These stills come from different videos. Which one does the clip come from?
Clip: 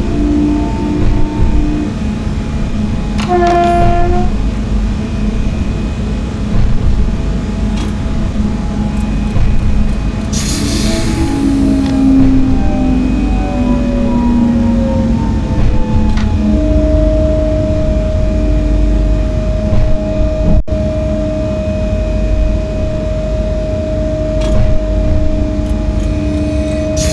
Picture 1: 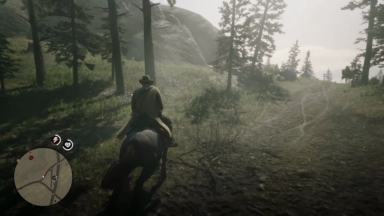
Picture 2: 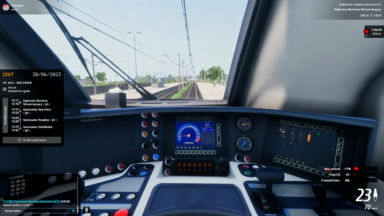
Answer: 2